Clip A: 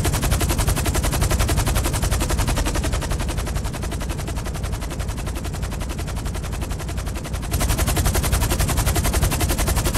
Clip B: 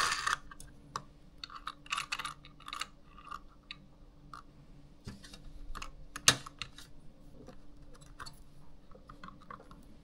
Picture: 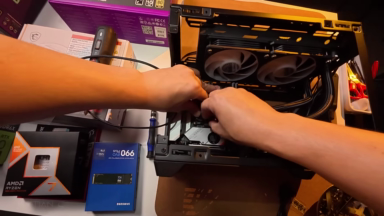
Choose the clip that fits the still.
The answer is B